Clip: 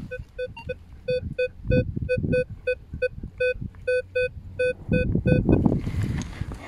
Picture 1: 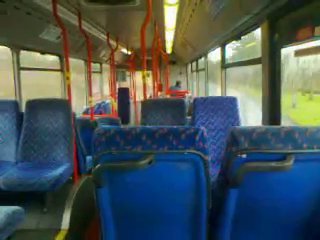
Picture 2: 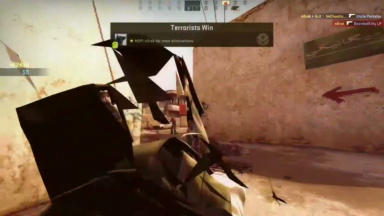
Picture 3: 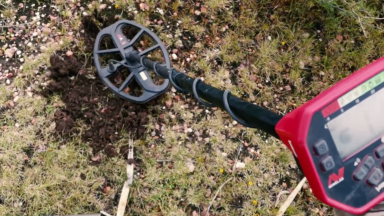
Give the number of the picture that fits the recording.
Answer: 3